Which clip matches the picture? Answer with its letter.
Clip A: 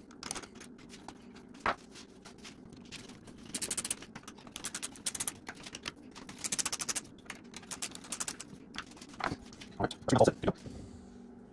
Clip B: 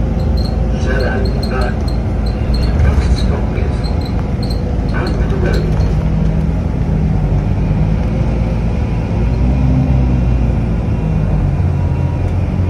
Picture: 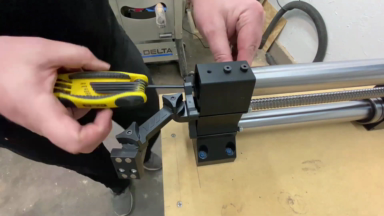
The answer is A